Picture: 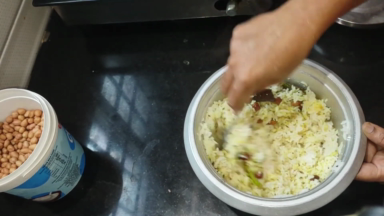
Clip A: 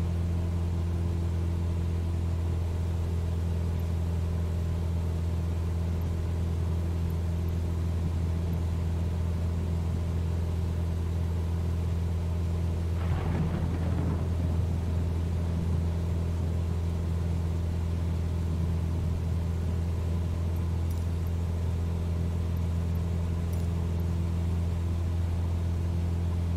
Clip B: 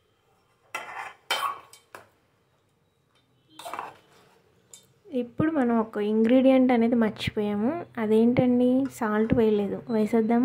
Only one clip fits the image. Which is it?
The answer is B